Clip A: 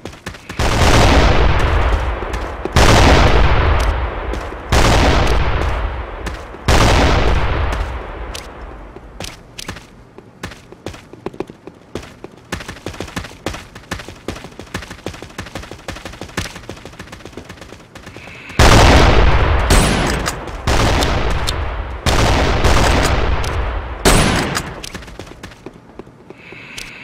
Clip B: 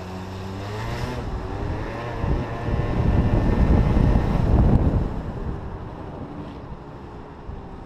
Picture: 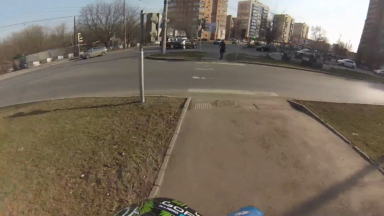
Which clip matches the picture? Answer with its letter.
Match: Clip B